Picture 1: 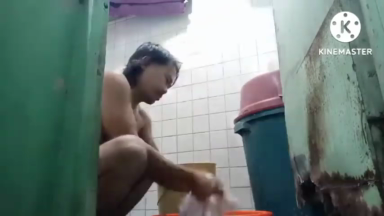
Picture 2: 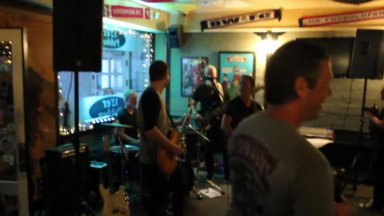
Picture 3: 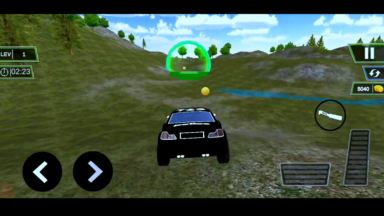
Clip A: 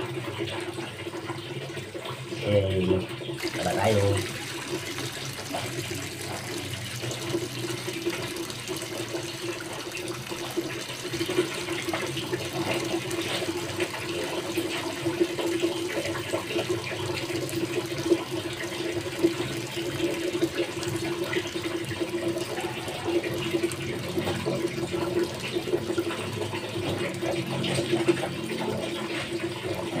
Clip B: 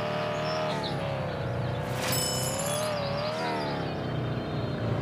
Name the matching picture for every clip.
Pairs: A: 1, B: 3